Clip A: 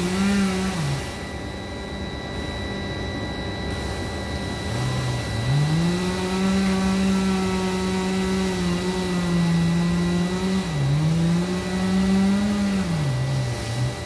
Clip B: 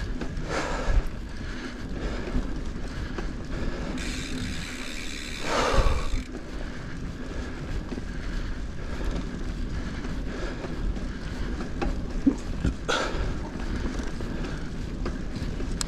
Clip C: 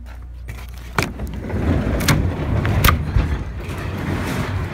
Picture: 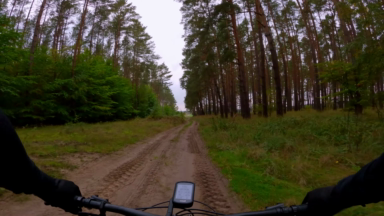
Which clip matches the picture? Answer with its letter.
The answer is B